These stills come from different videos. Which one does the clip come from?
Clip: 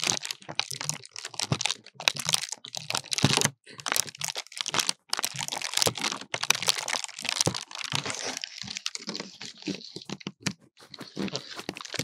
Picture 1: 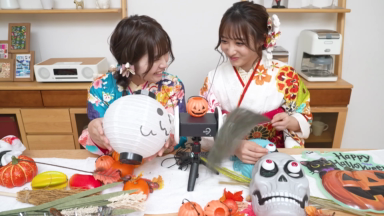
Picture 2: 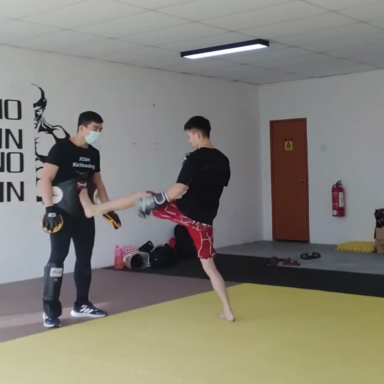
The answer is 1